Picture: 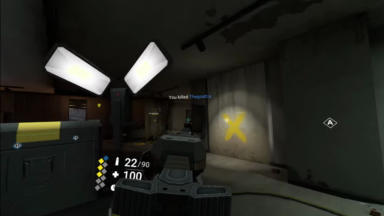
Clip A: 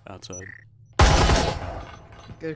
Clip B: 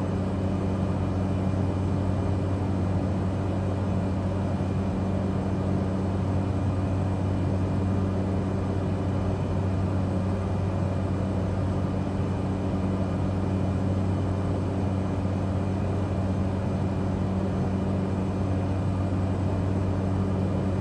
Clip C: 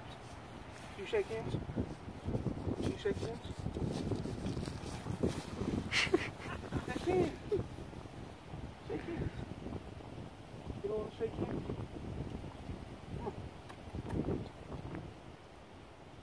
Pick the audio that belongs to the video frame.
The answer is A